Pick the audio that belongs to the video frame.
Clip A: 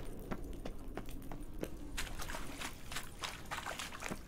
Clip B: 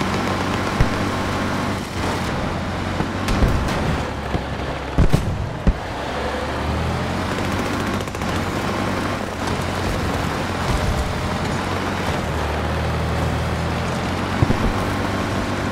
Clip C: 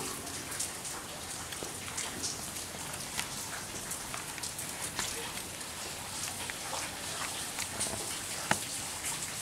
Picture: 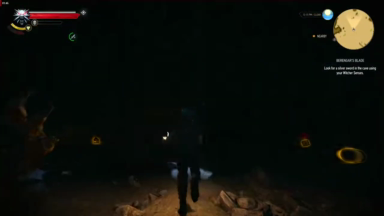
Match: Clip A